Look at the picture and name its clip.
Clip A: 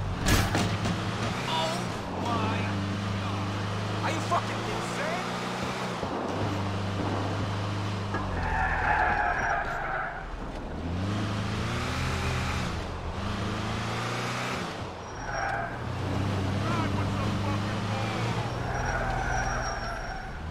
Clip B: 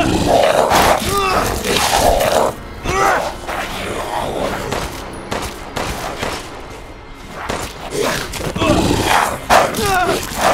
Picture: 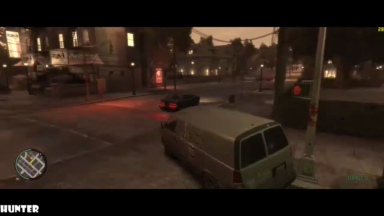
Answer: A